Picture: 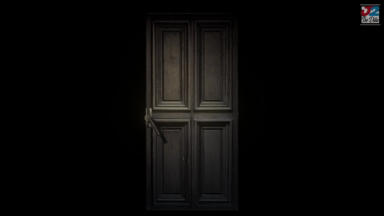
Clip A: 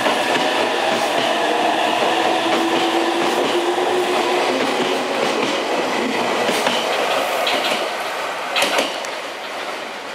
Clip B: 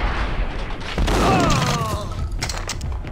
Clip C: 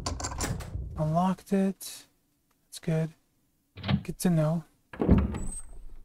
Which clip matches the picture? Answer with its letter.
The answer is C